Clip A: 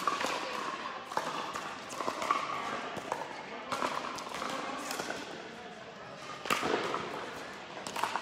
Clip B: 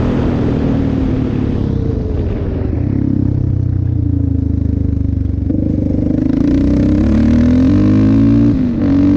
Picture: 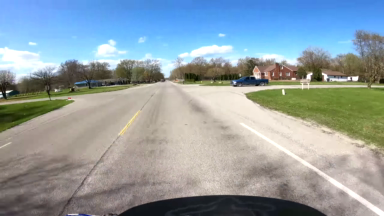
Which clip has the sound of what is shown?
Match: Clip B